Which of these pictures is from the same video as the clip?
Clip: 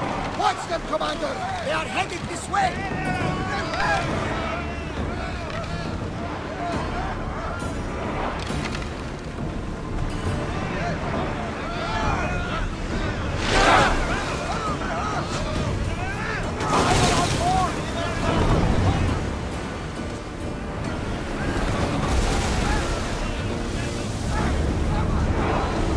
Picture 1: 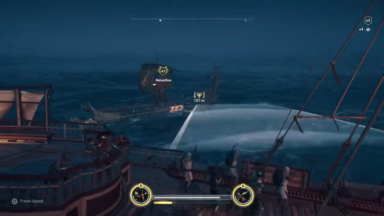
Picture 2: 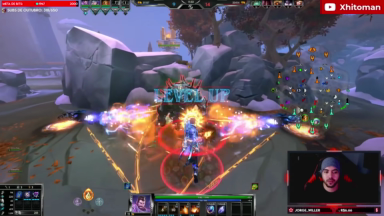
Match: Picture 1